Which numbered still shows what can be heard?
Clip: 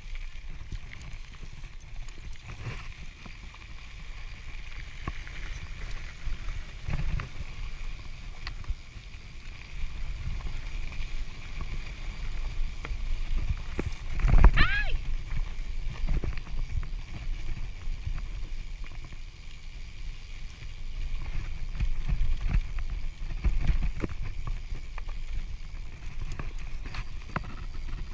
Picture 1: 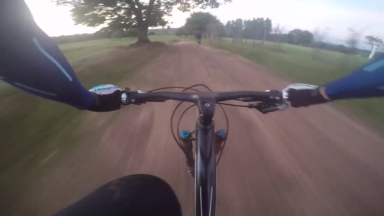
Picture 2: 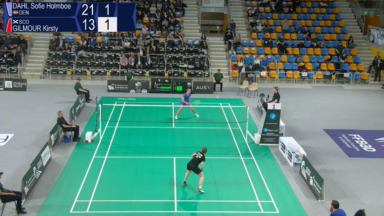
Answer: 1